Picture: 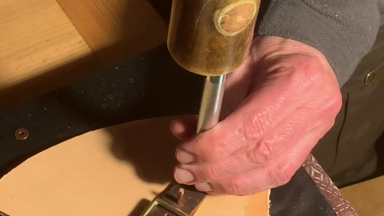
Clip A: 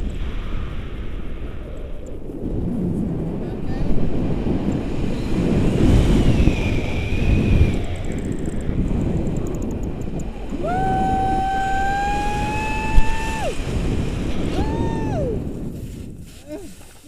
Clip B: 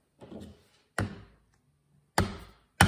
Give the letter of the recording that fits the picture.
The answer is B